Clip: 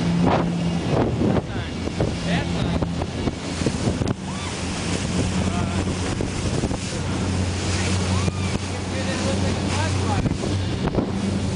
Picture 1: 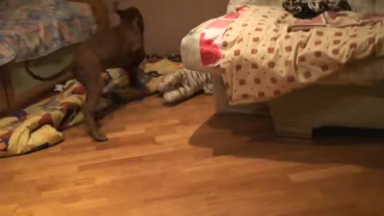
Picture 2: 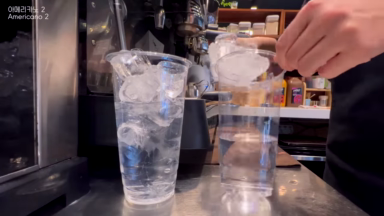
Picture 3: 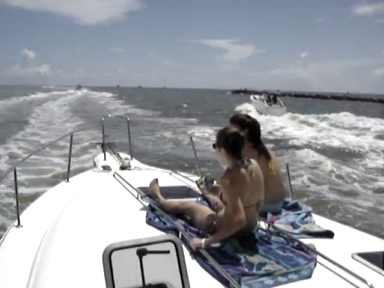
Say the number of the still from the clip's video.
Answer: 3